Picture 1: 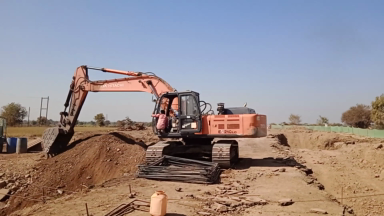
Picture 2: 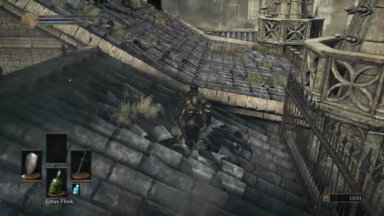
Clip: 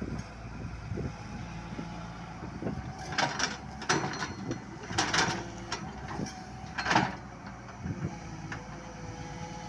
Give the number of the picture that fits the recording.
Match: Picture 1